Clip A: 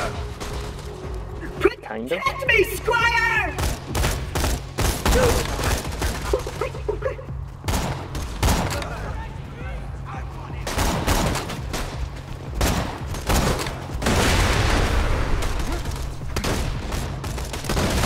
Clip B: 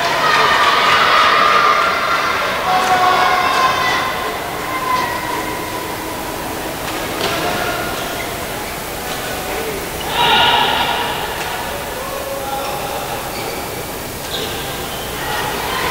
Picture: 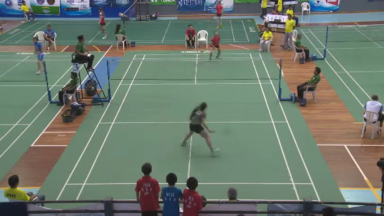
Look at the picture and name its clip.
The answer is B